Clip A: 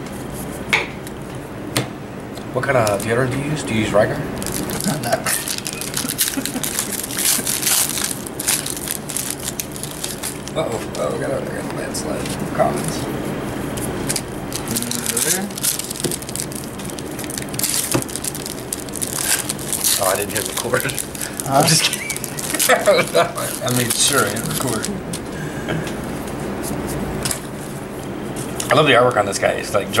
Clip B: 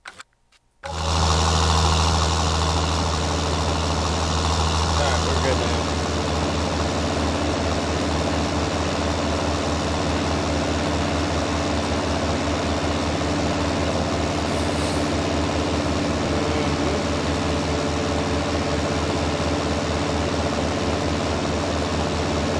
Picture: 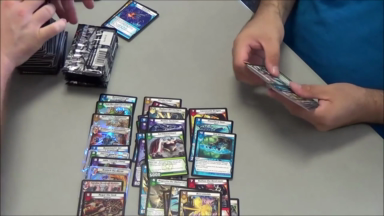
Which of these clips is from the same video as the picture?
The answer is A